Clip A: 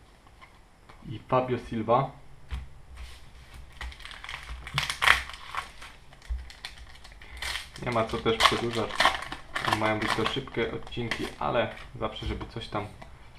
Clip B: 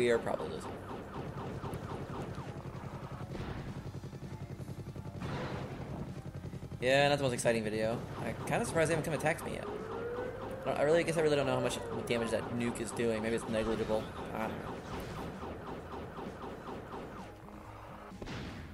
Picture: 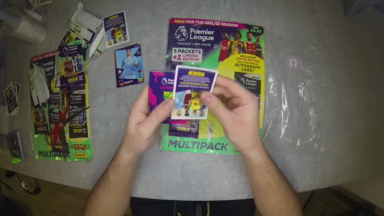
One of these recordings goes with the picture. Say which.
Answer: A